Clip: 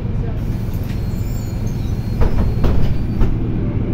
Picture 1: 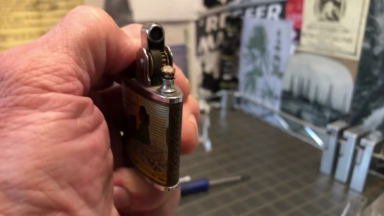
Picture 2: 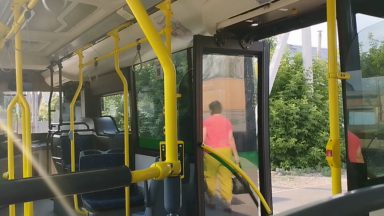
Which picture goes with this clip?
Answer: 2